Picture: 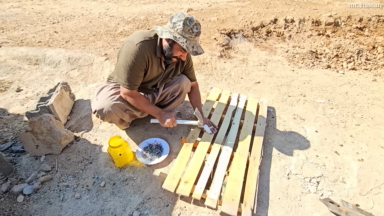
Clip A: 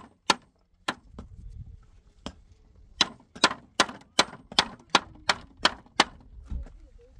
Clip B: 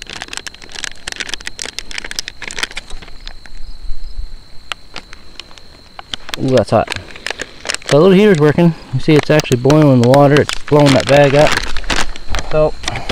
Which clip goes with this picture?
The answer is A